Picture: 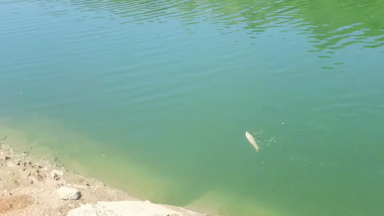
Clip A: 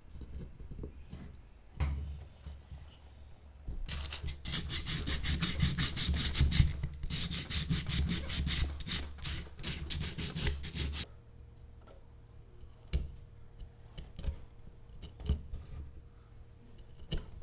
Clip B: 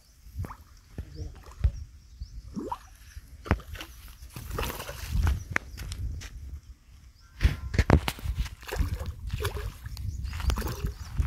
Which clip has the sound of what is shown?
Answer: B